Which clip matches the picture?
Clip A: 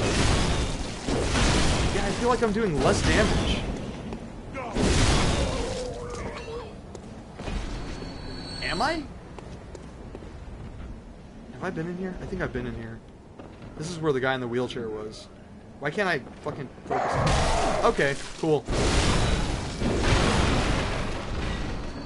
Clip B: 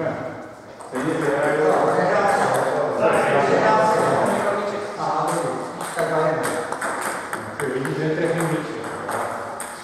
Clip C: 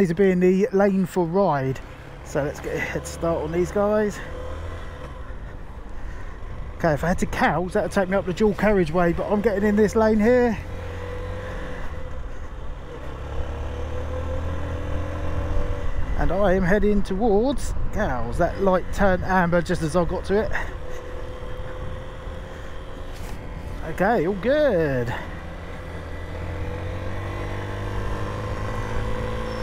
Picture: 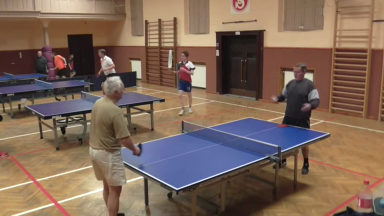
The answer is B